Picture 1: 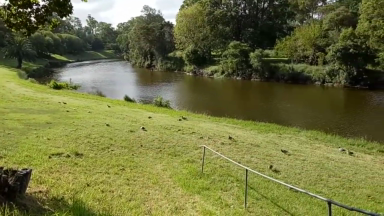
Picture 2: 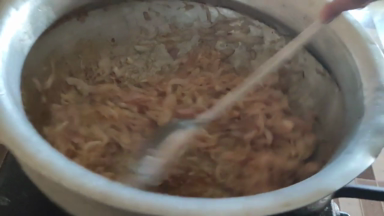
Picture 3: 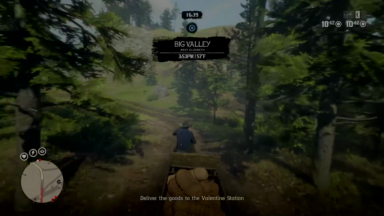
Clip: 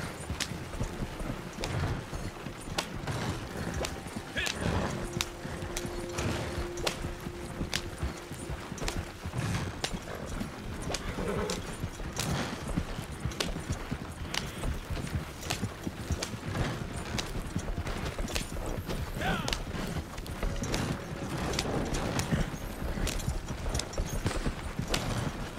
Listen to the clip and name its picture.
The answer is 3